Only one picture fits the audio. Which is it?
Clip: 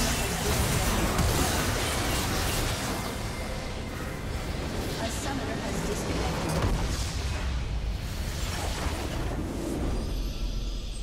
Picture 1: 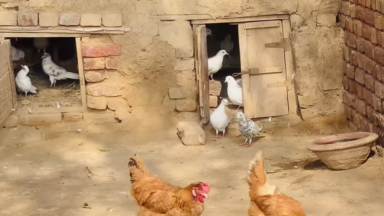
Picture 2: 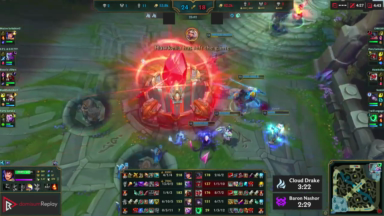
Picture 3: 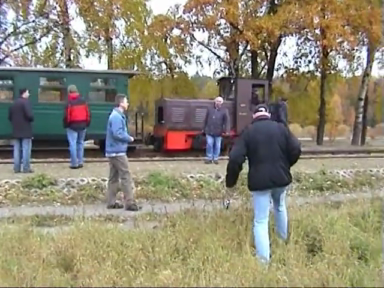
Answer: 2